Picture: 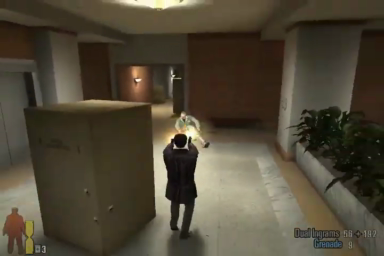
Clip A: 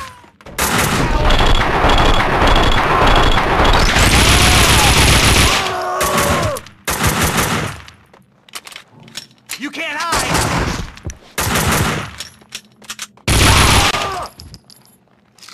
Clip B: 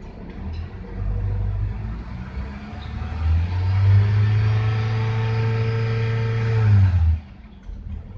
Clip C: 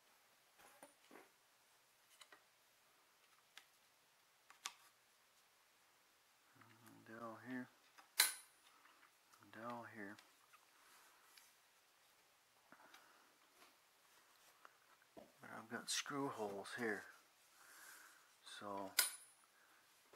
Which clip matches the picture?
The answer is A